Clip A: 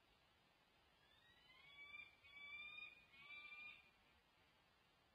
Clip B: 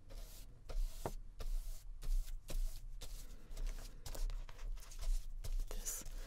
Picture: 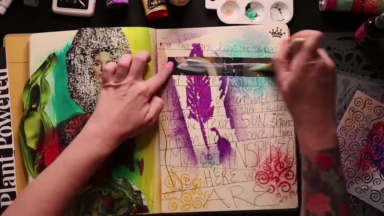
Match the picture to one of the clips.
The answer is B